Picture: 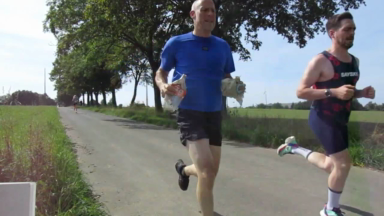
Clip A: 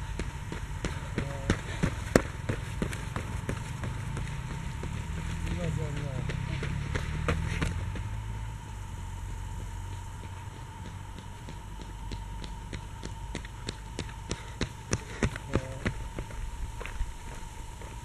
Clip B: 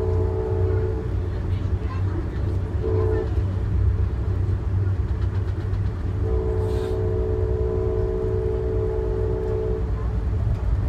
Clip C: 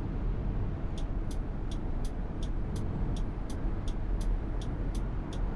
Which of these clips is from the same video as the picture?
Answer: A